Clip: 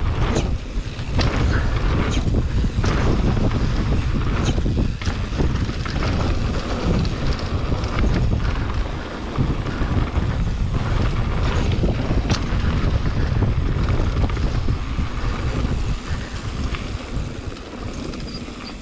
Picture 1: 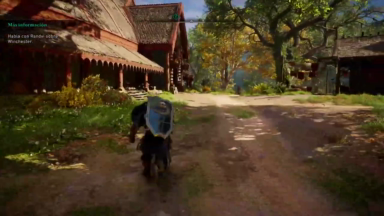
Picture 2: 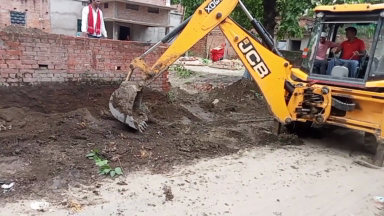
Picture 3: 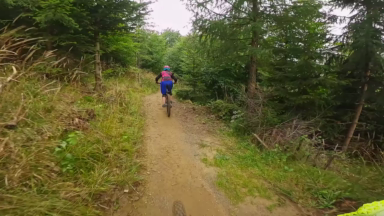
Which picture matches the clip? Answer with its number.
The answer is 3